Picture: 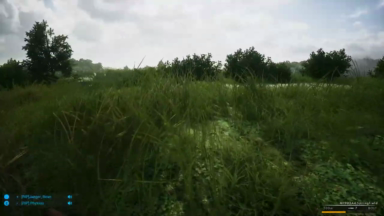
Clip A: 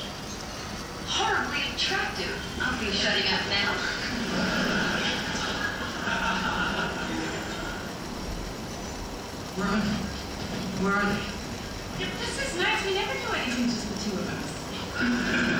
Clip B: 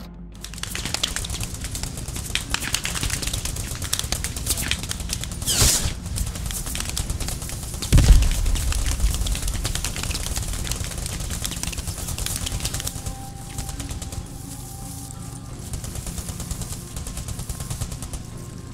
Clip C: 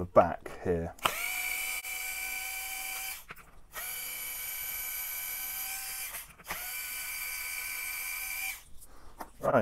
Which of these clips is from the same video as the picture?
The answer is B